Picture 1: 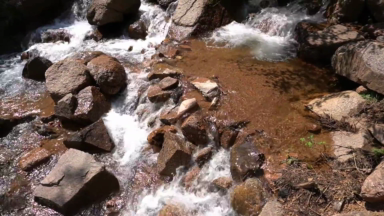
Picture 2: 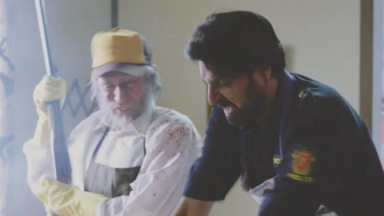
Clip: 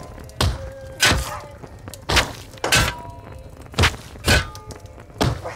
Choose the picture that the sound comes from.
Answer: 2